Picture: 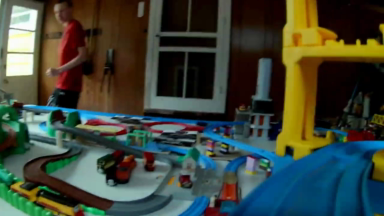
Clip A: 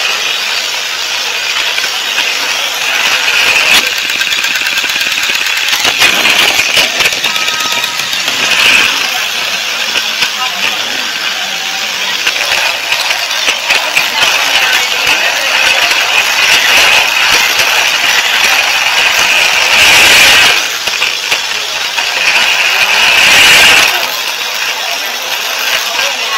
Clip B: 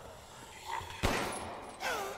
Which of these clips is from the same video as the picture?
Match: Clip A